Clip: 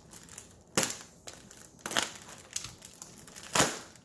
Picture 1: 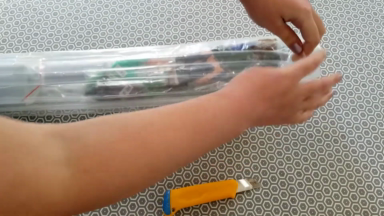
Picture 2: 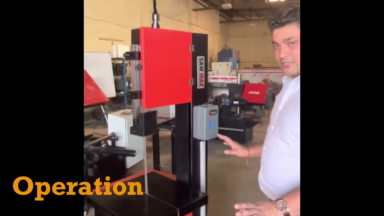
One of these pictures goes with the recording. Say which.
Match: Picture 1